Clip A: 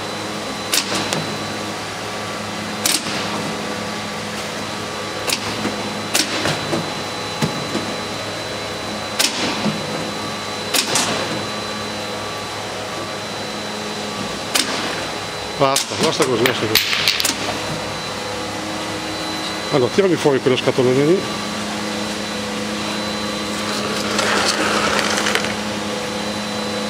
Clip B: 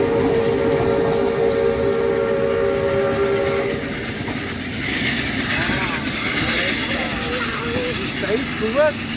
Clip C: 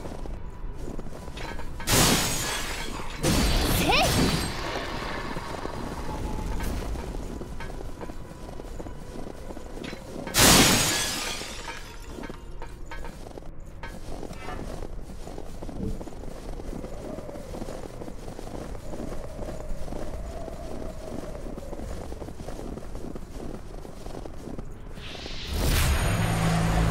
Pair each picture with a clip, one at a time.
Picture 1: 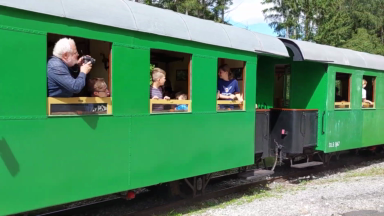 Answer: B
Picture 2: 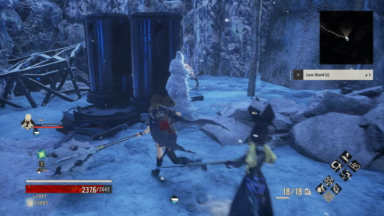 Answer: C